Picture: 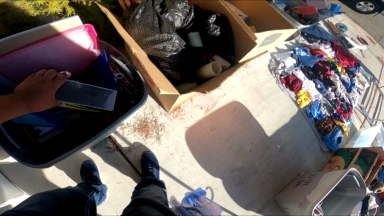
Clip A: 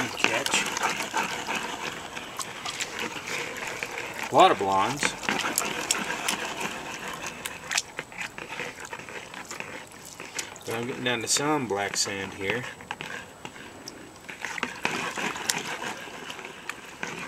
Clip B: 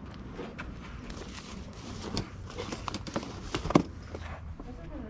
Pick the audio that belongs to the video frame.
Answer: B